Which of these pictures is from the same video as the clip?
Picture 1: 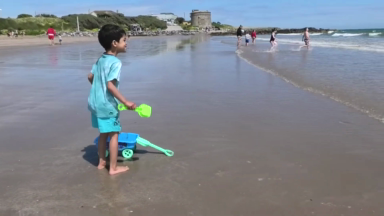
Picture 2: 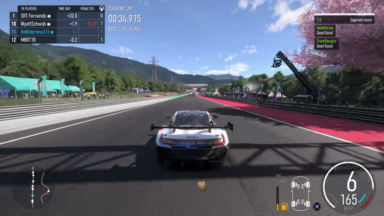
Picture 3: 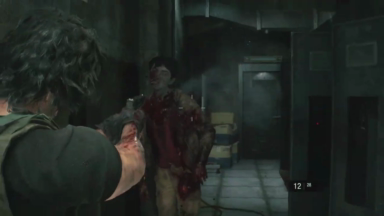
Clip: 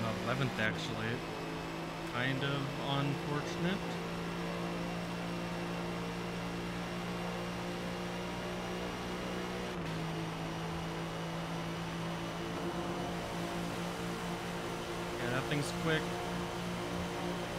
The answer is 2